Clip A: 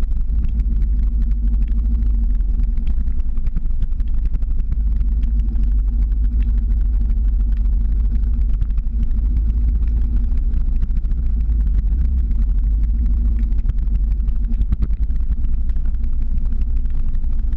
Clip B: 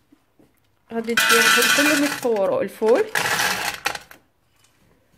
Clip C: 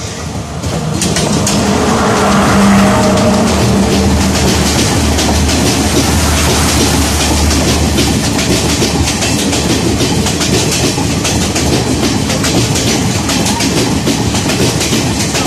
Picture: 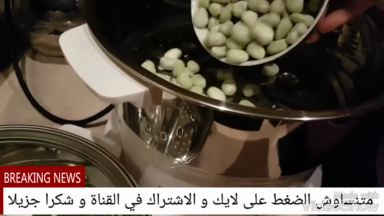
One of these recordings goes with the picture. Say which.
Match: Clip B